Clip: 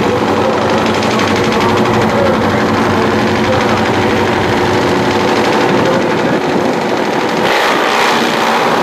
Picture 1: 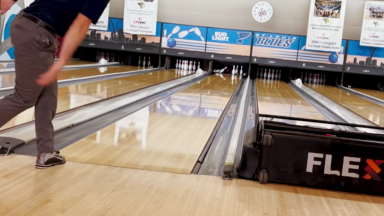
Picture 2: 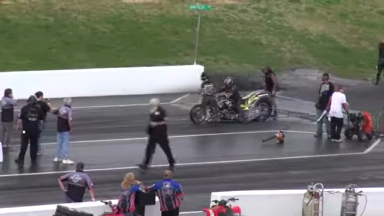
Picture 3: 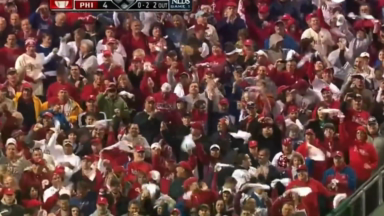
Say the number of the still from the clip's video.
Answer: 2